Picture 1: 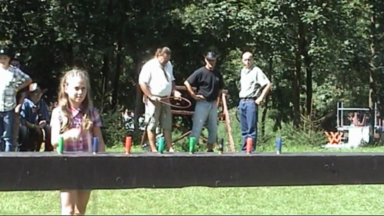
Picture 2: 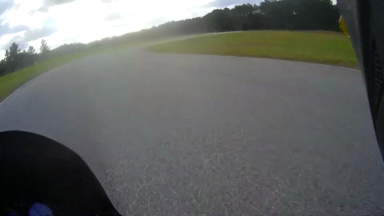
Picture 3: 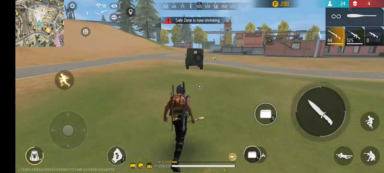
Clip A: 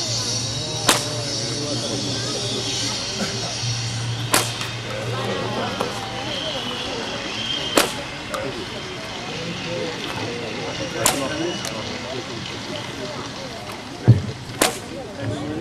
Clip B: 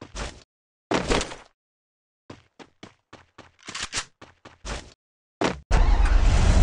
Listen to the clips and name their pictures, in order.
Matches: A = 1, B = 3